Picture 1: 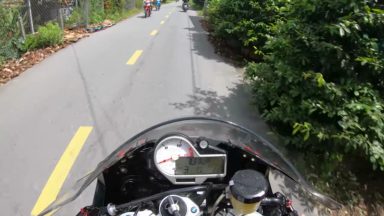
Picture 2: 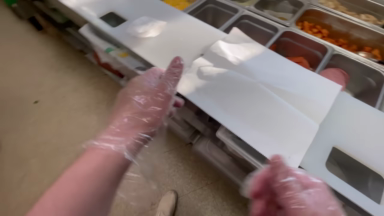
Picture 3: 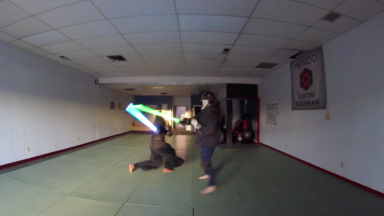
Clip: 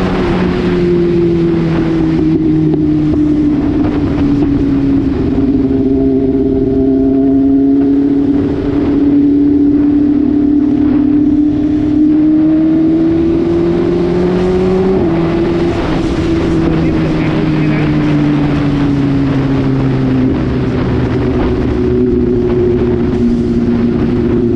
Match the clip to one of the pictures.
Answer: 1